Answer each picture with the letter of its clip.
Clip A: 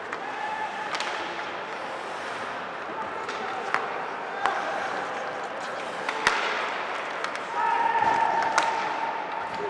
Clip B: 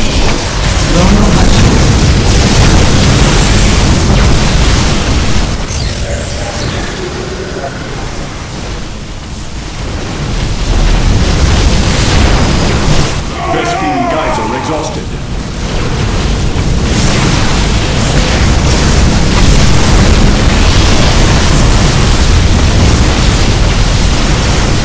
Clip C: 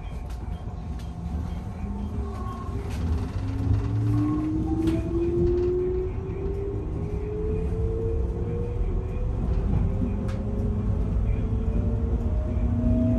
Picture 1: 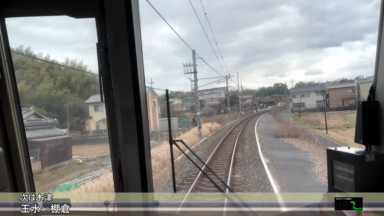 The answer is C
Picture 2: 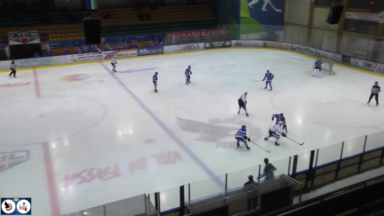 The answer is A